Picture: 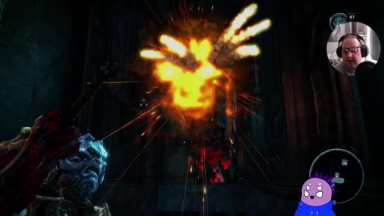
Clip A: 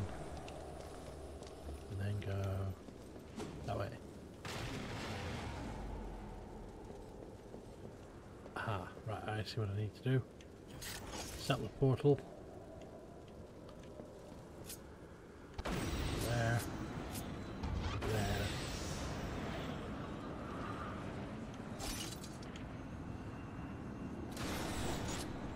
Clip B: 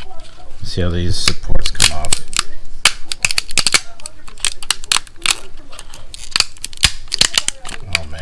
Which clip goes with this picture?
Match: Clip A